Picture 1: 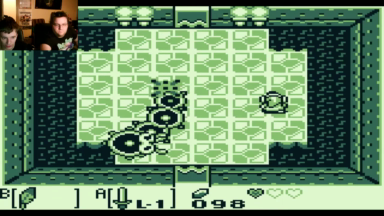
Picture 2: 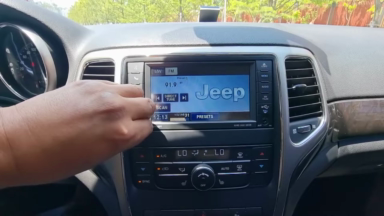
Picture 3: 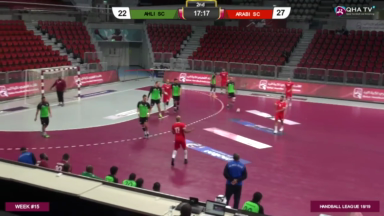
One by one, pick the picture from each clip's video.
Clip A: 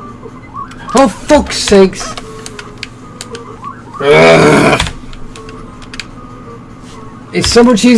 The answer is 1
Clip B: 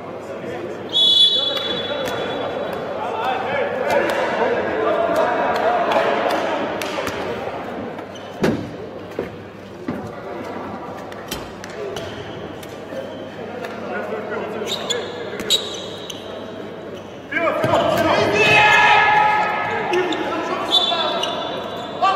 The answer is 3